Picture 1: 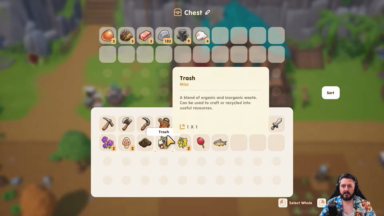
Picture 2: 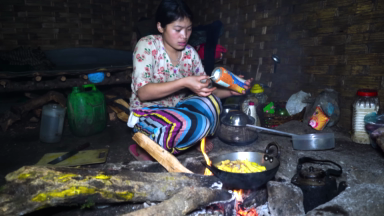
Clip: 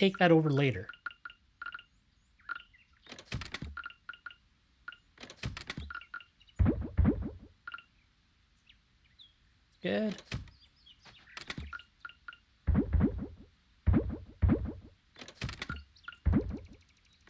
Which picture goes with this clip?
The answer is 1